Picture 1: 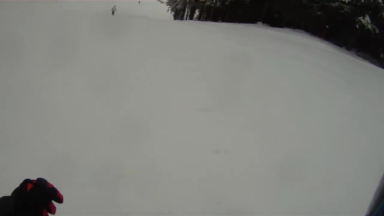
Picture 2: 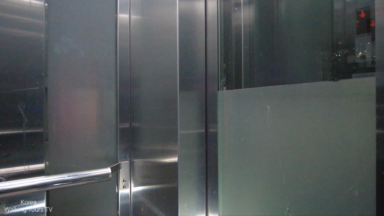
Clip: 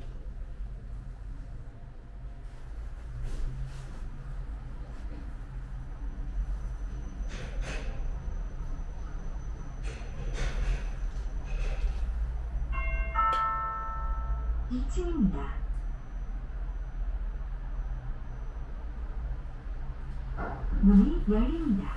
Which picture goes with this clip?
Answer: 2